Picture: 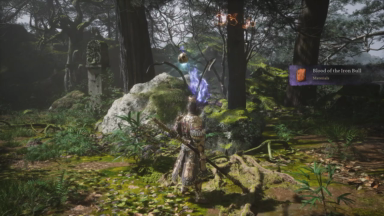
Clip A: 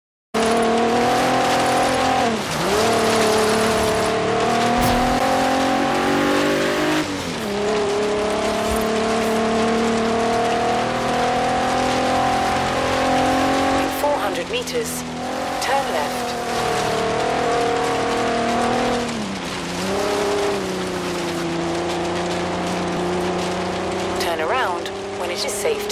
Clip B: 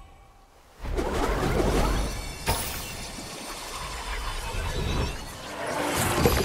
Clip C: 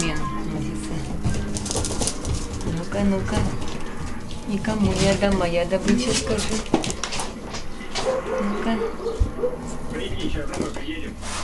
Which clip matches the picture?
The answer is B